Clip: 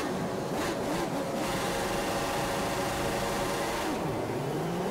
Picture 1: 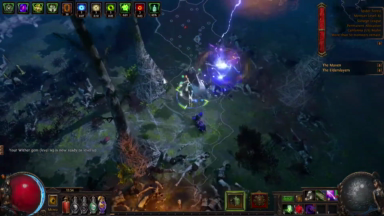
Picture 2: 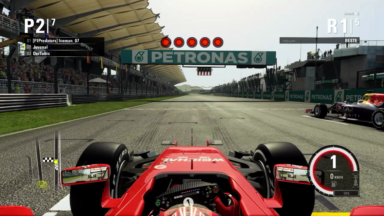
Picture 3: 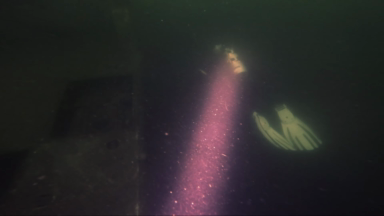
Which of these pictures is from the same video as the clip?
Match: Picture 2